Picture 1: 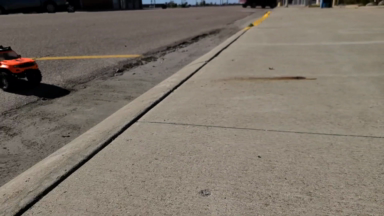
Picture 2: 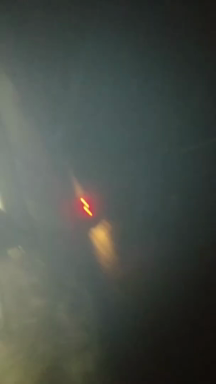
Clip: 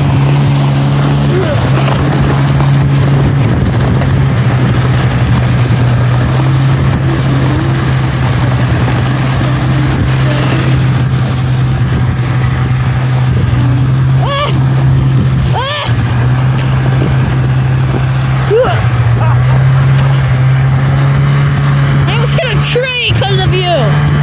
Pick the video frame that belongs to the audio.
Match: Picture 2